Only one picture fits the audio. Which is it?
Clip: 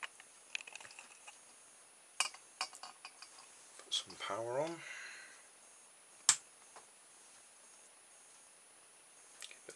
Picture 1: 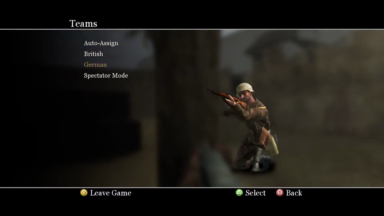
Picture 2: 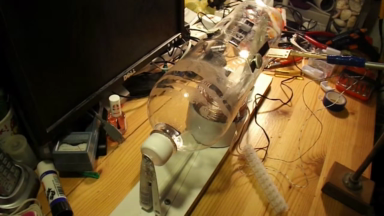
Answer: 2